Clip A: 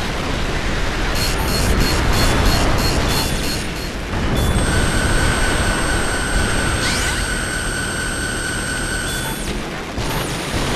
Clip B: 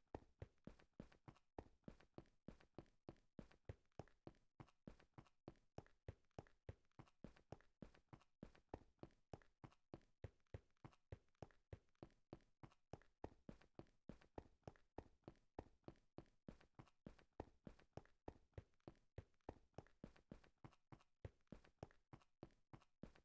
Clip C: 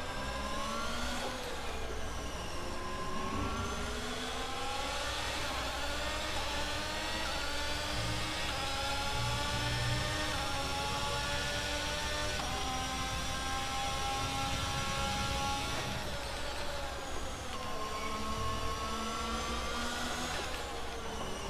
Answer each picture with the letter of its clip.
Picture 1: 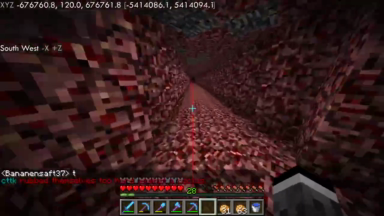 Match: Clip B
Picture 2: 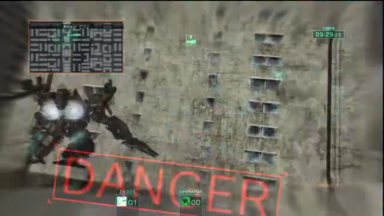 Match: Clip A